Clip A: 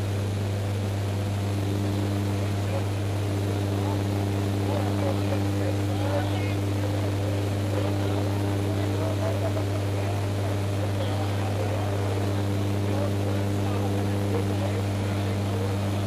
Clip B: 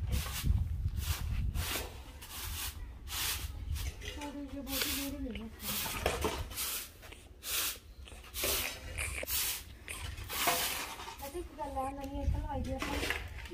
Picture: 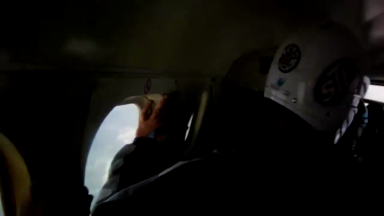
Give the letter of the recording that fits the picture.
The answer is A